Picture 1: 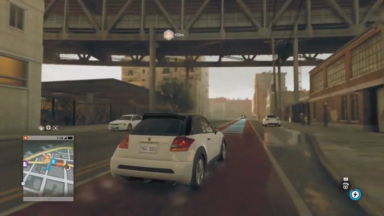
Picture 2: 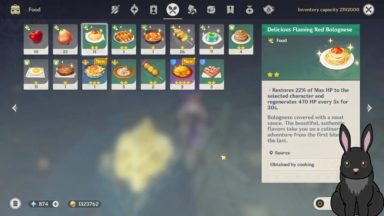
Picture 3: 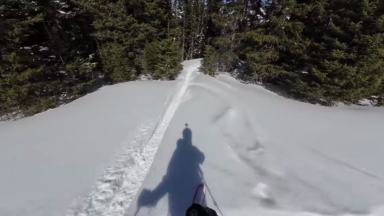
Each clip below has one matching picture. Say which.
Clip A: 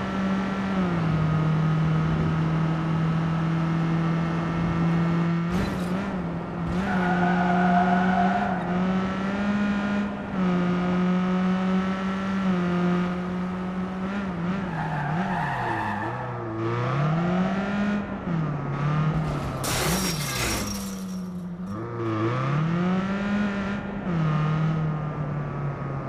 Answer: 1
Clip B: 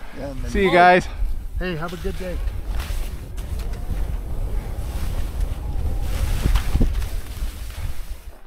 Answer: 3